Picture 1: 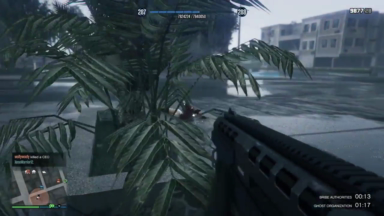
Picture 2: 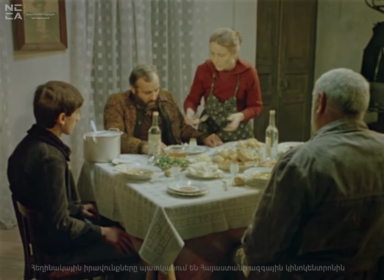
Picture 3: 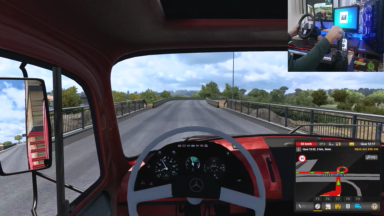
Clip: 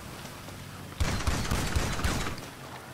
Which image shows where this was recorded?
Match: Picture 1